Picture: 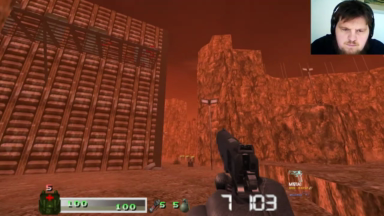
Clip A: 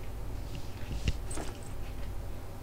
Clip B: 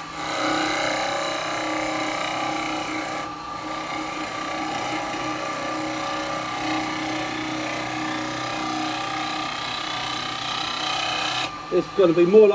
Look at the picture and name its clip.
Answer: A